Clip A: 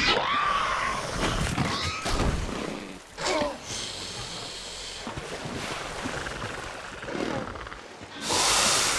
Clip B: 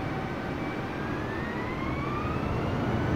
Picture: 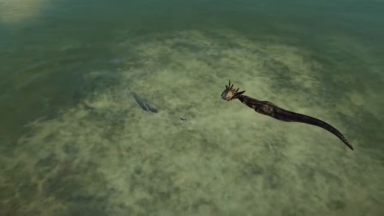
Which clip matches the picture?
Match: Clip A